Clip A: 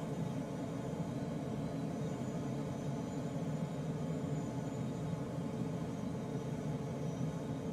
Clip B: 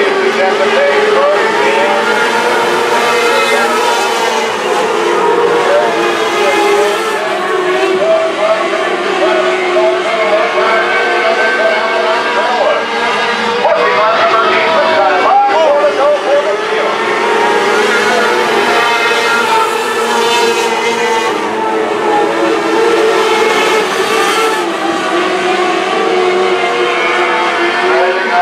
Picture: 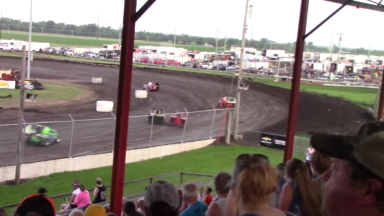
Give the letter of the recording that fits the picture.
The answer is B